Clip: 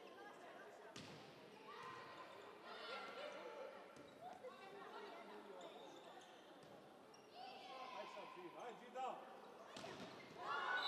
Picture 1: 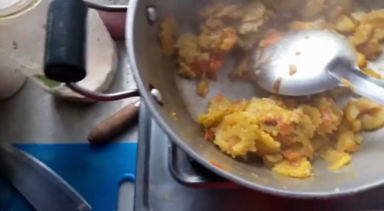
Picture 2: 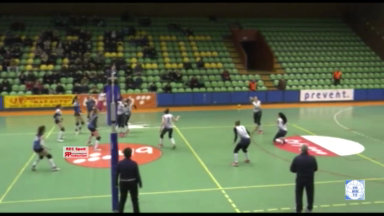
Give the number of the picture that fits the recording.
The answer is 2